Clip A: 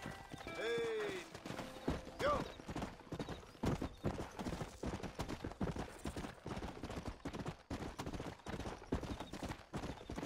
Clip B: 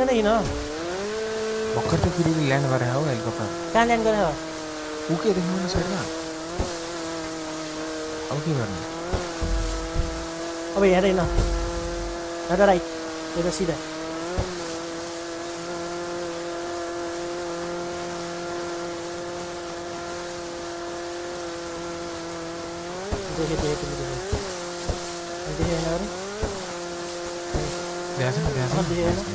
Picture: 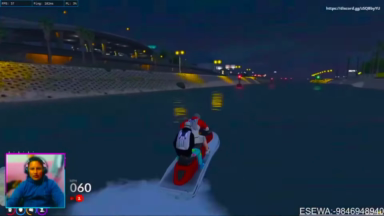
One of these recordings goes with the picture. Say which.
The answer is B